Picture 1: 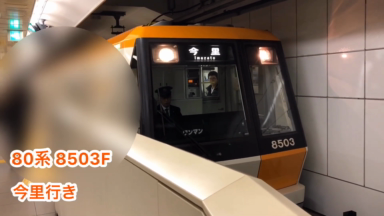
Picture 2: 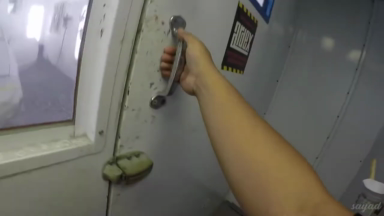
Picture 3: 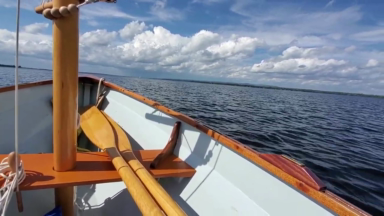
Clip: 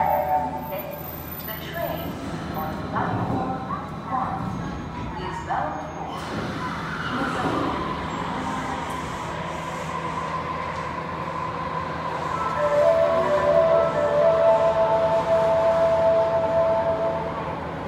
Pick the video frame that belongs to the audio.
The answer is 1